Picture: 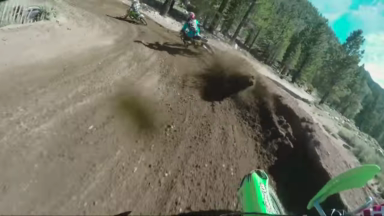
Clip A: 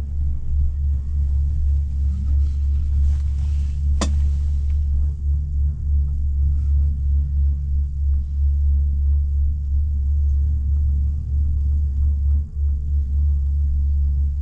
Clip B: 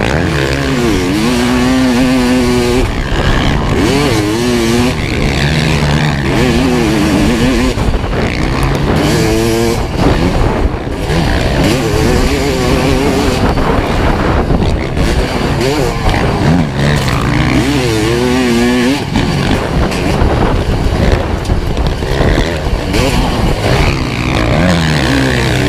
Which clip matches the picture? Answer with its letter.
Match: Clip B